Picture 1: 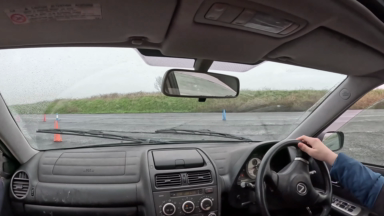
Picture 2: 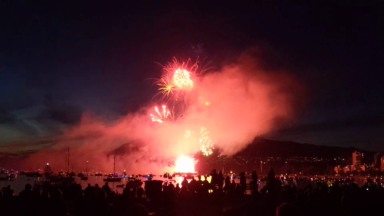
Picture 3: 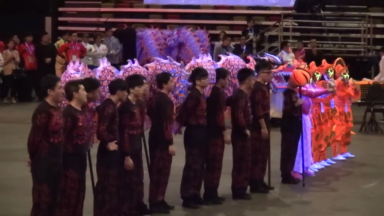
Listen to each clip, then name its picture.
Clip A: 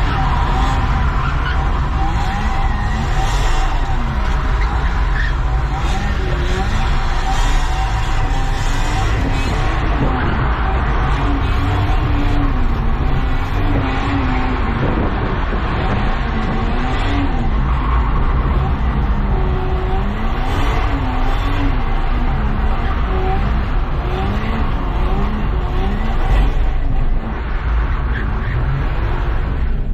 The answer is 1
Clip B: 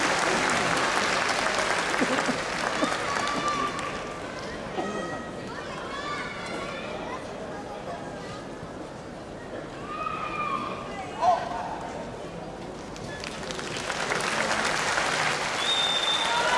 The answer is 3